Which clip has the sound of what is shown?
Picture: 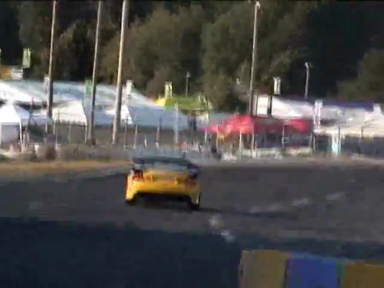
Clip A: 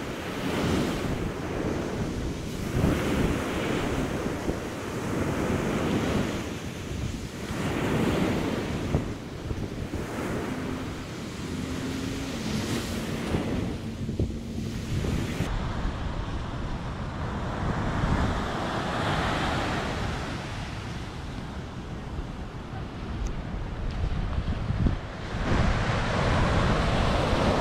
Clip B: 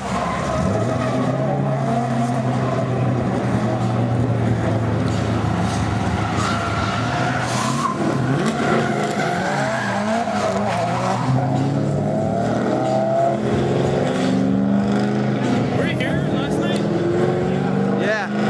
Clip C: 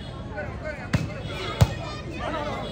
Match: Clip B